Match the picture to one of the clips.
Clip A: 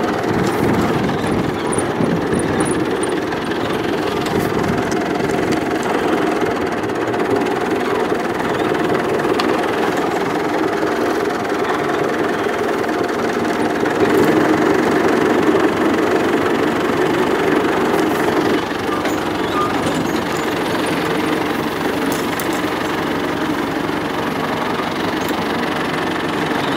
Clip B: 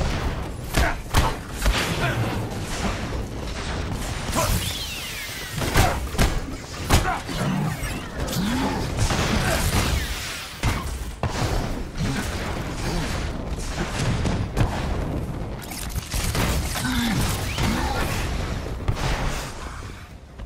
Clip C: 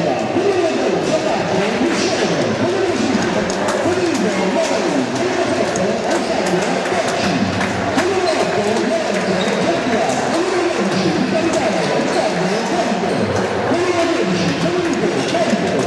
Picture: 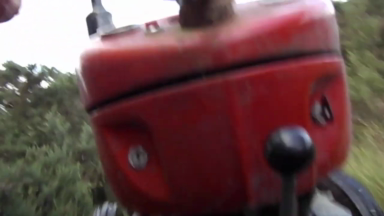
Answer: A